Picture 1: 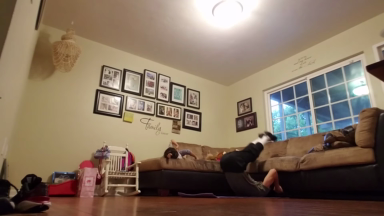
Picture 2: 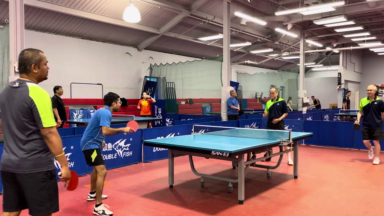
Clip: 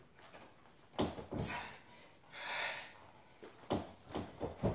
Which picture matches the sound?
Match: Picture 1